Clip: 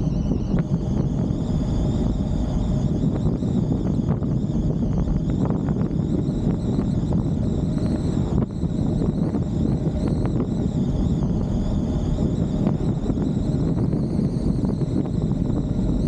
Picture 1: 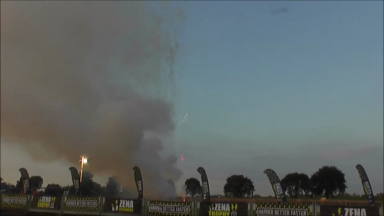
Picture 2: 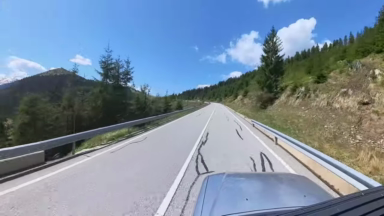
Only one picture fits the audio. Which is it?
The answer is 2